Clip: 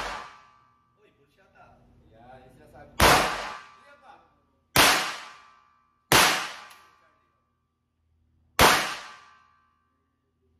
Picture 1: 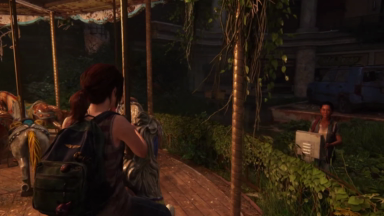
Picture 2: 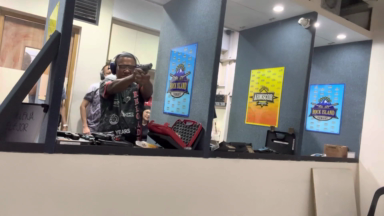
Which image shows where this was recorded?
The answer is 2